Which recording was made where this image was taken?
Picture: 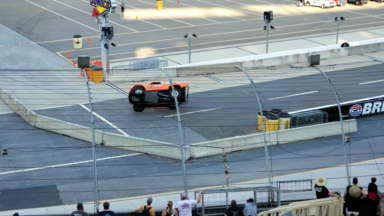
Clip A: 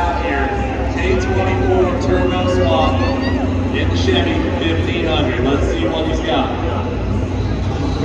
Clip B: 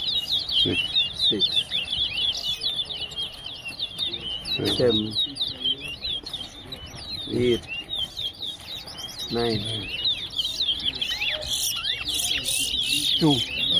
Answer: A